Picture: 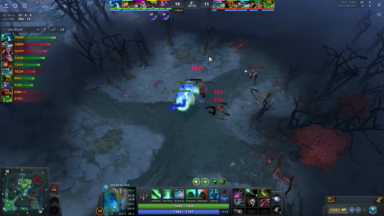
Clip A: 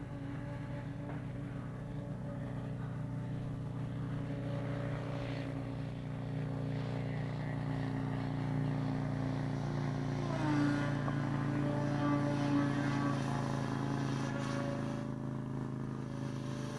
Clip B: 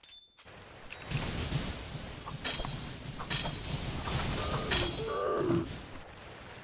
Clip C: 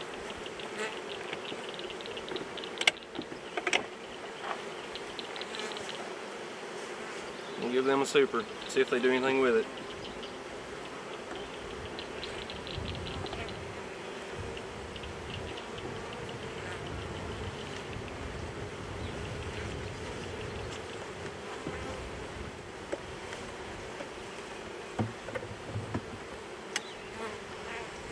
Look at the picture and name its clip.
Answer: B